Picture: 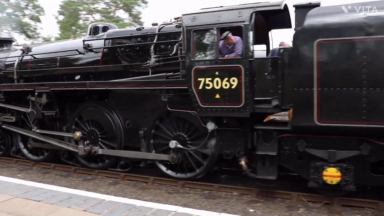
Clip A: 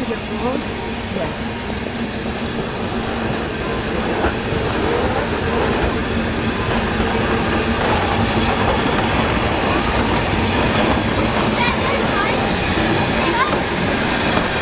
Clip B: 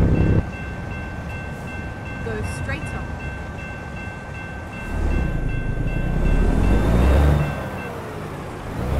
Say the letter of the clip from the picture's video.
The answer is A